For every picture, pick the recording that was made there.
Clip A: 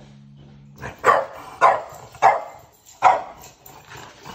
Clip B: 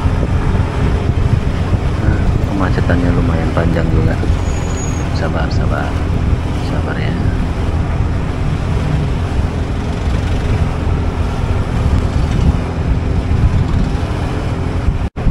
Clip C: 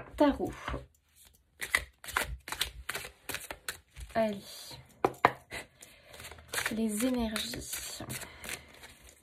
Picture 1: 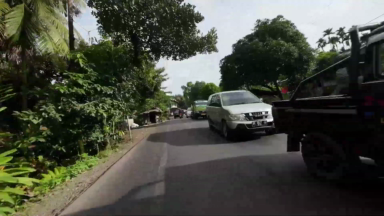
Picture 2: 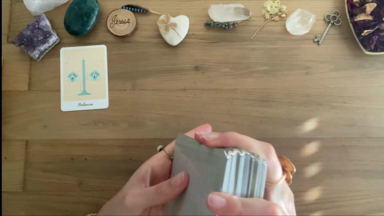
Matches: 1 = B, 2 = C